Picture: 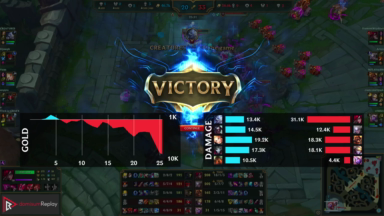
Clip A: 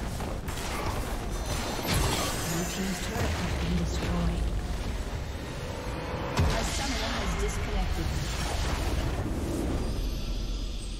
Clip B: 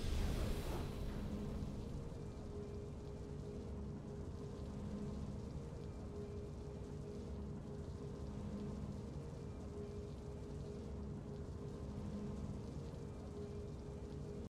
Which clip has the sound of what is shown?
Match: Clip B